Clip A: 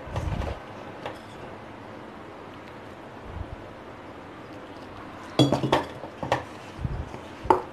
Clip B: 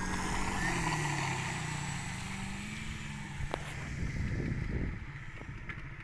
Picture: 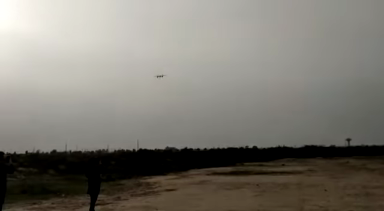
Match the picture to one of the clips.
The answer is B